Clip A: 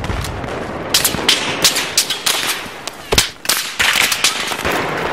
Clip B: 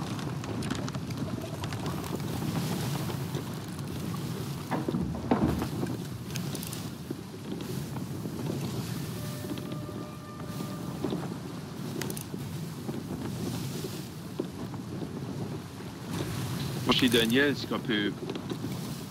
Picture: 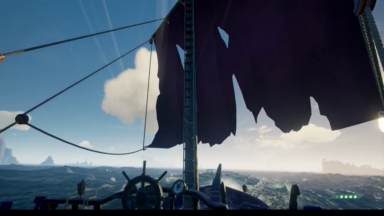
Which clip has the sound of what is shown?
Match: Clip B